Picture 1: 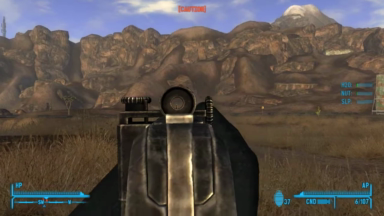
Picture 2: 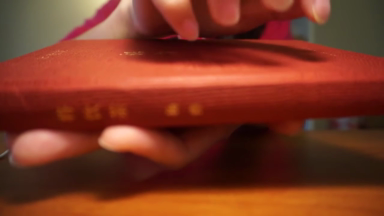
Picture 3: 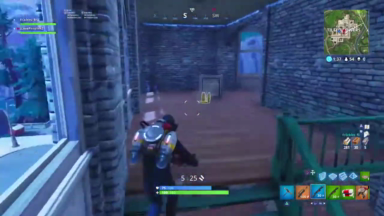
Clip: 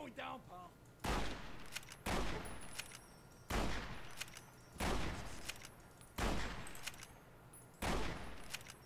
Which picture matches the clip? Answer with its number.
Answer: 1